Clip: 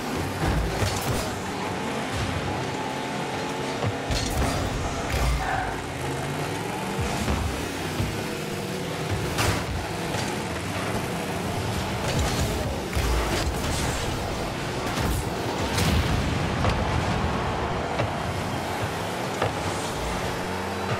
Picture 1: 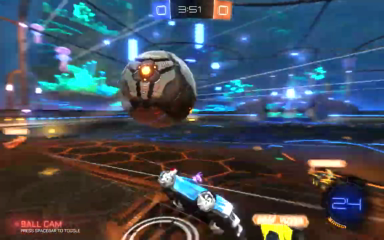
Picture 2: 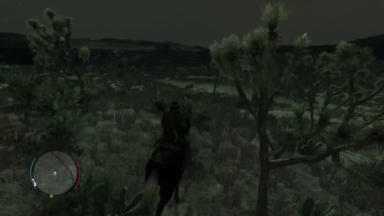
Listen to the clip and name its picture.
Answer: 1